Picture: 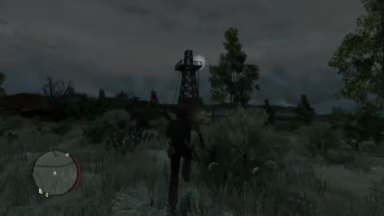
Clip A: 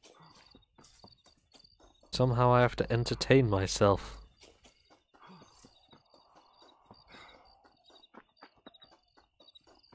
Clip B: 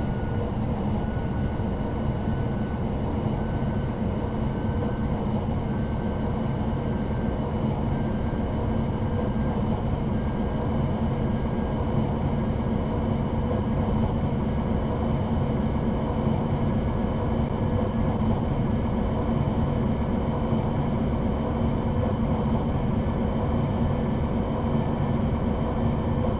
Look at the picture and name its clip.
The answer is A